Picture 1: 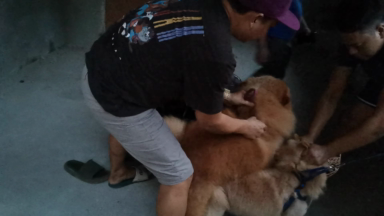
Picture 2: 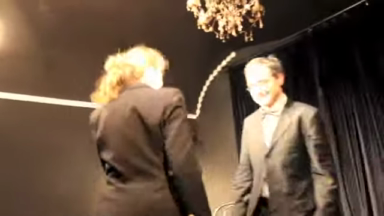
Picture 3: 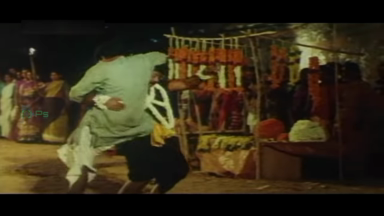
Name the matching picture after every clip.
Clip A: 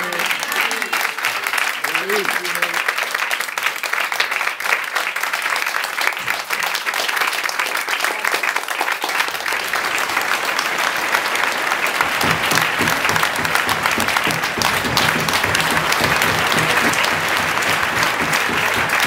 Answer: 2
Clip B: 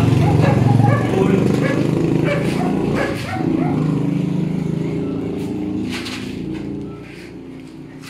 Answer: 1